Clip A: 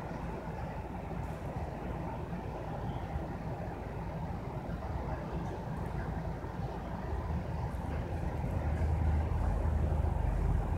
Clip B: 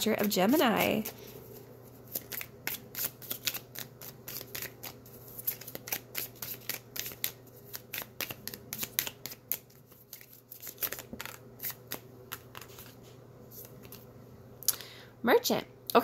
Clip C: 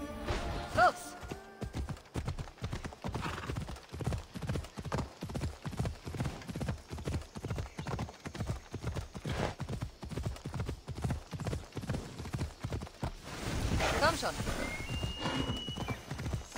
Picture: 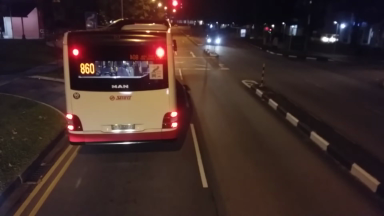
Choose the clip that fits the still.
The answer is A